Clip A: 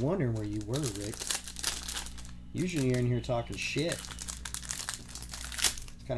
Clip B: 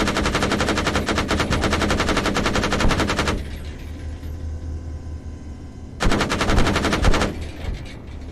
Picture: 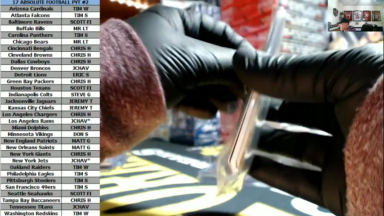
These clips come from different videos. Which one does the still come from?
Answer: A